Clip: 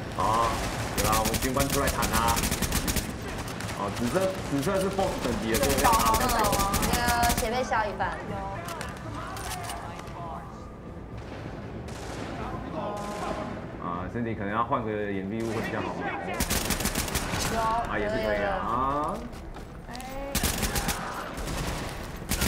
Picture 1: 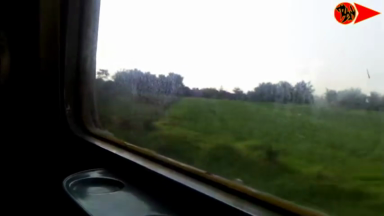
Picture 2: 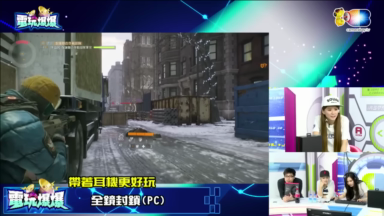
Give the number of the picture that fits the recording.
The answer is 2